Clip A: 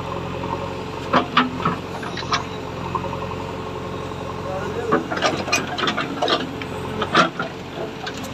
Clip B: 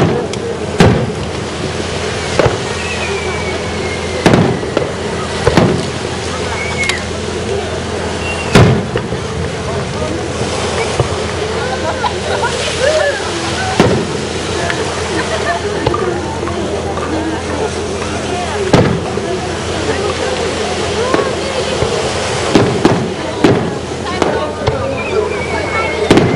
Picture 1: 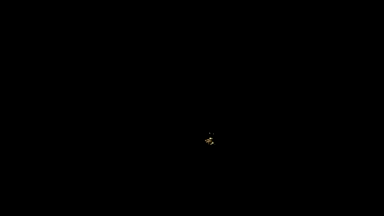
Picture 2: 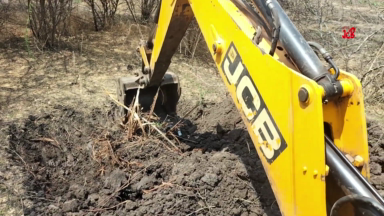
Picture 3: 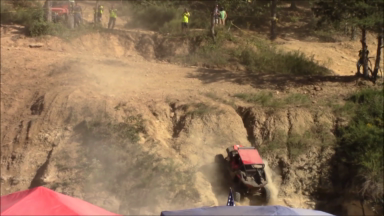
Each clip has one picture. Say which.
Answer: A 2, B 1